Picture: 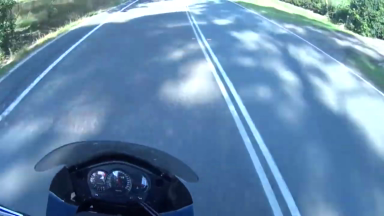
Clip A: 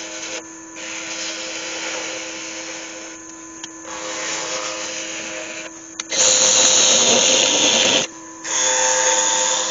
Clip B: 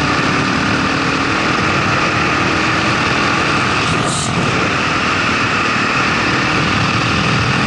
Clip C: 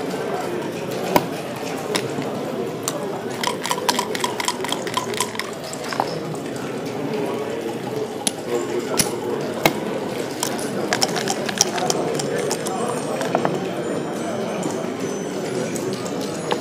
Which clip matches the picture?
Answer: B